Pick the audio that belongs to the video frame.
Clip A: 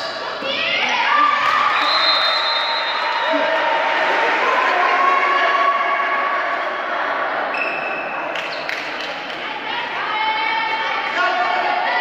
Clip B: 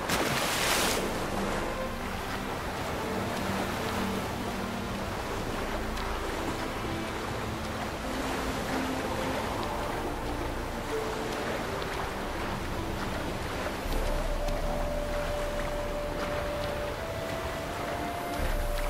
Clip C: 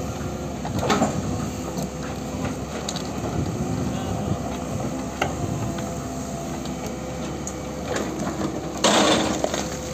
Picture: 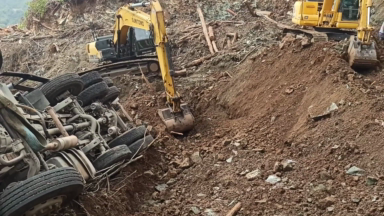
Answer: C